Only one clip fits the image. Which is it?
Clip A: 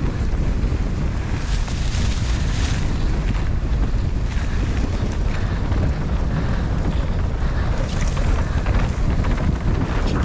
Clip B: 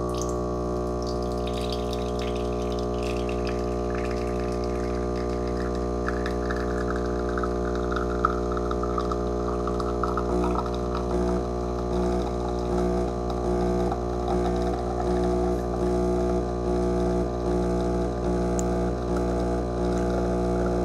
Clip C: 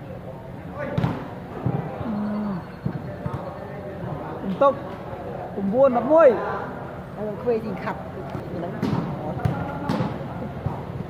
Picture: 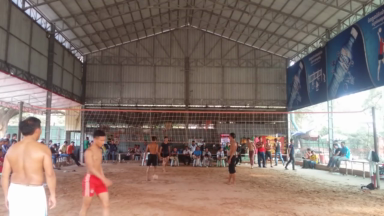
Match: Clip C